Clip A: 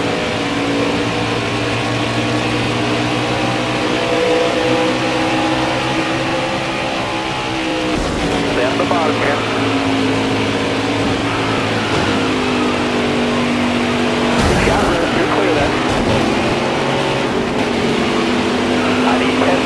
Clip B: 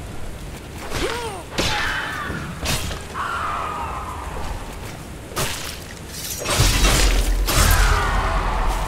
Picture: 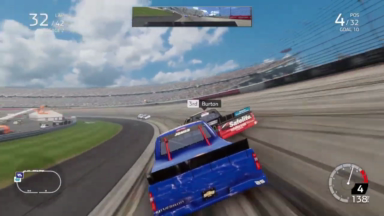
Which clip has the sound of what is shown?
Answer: A